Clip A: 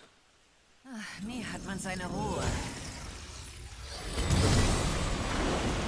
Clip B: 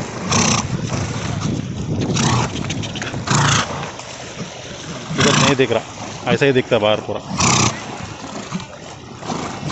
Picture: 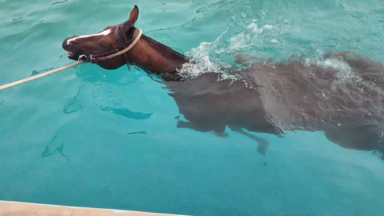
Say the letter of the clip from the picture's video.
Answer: B